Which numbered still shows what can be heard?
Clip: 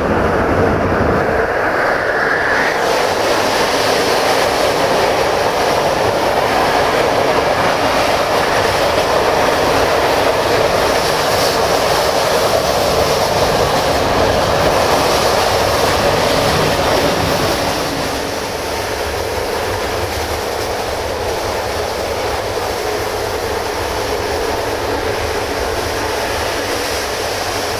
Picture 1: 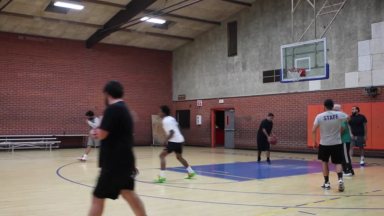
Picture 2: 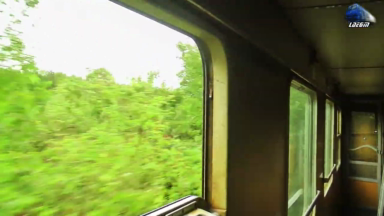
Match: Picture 2